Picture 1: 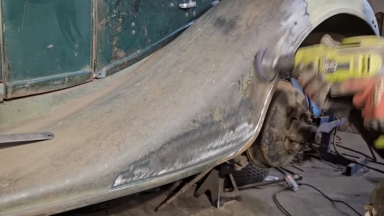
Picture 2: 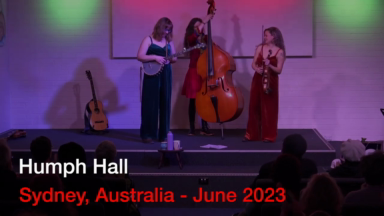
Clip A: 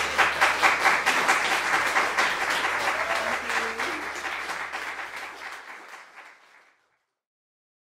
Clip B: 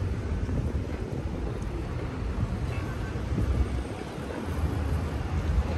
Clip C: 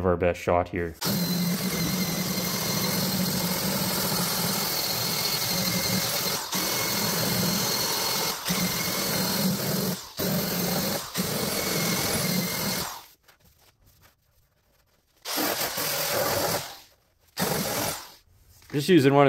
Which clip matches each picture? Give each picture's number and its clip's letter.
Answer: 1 C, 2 A